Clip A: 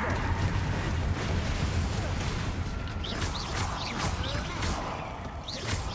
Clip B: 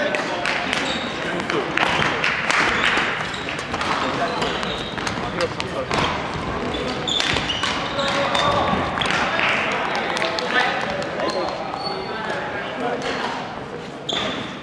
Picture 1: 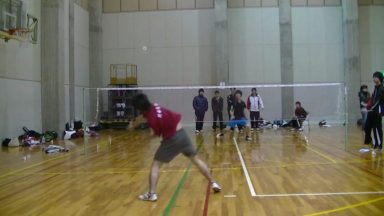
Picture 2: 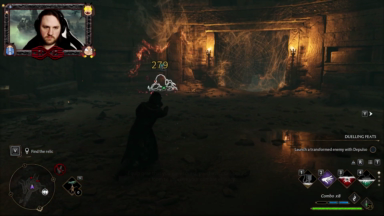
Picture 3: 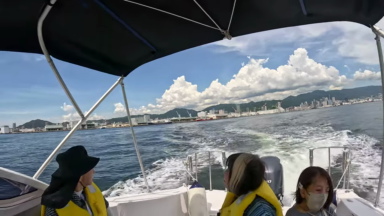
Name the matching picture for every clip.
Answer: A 2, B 1